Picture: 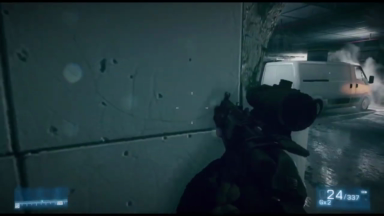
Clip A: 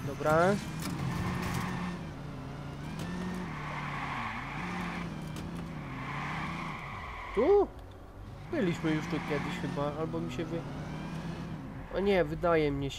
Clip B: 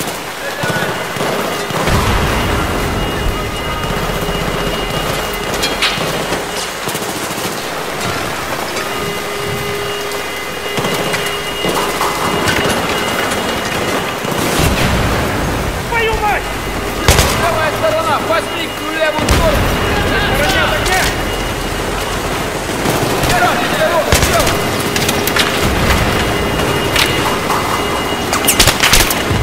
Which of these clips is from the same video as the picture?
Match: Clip B